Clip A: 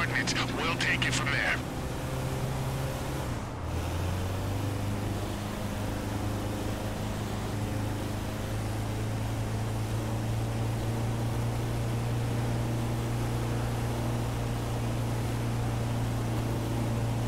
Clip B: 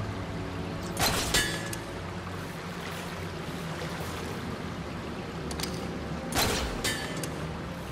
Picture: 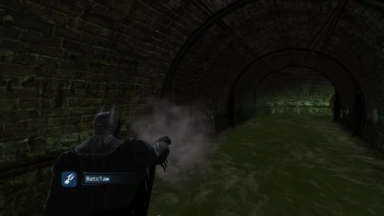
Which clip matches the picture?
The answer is B